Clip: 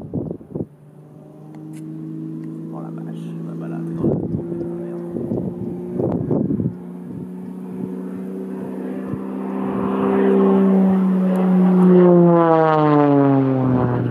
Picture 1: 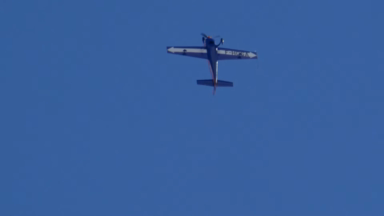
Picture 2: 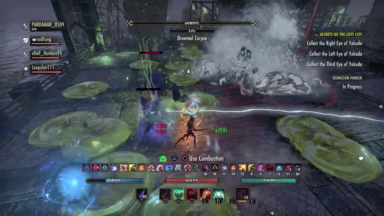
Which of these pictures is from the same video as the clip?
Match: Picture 1